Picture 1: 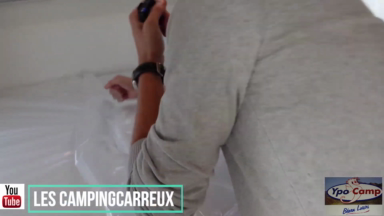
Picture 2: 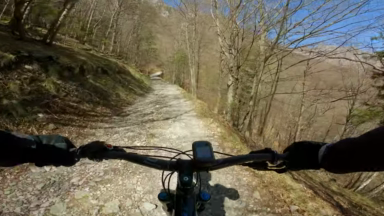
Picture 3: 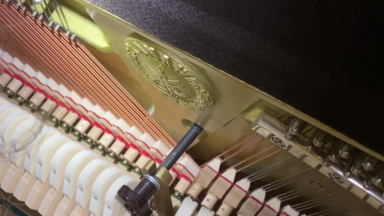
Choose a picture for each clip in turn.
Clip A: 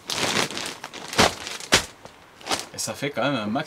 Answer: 1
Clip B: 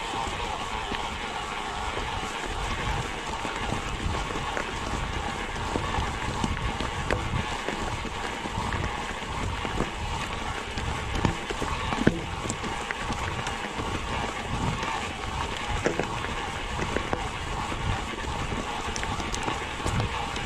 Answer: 2